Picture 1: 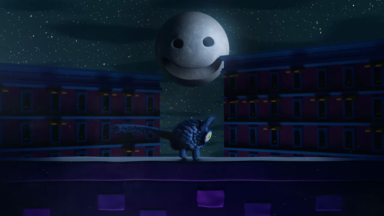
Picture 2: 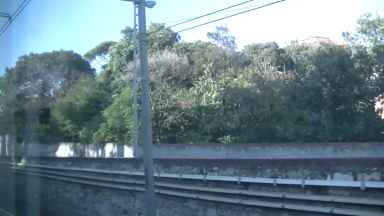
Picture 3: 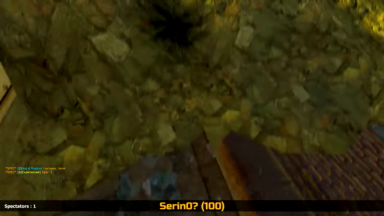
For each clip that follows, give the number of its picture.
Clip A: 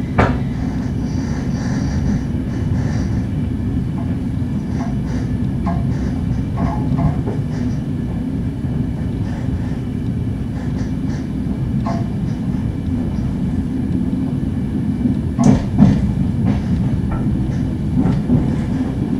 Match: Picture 2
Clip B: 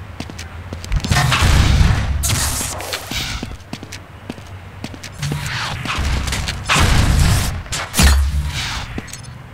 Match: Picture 3